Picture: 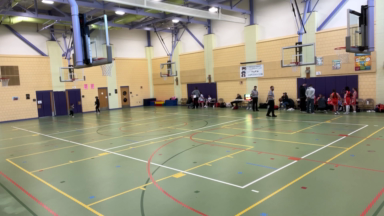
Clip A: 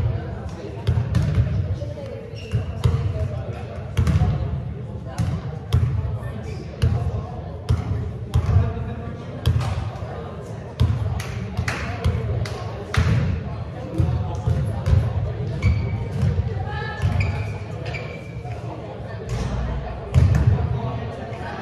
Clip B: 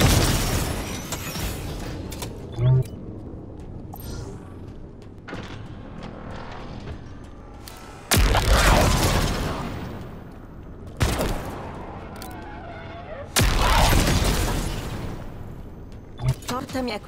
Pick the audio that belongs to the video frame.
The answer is A